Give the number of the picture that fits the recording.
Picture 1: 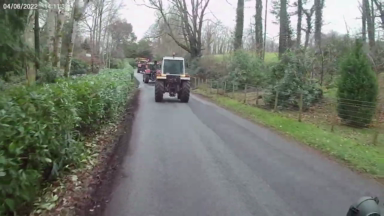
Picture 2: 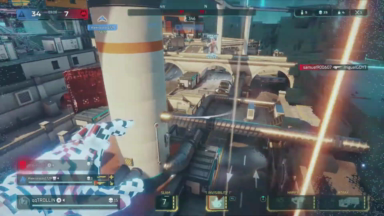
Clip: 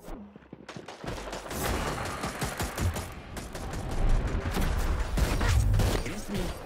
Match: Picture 2